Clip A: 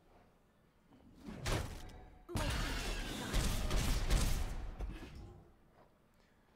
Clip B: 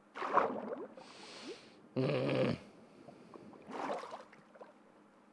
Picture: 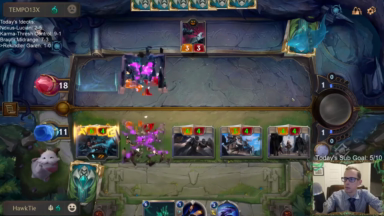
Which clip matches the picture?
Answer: A